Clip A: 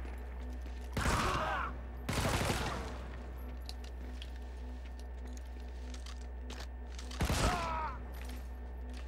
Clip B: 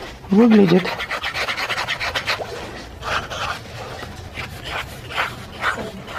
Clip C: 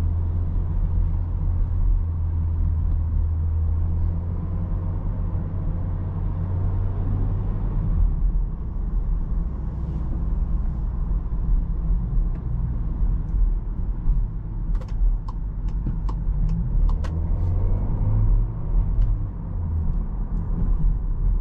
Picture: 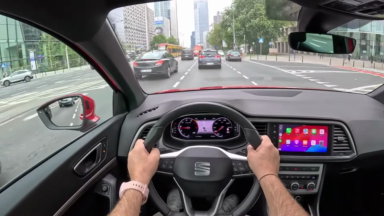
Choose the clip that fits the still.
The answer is C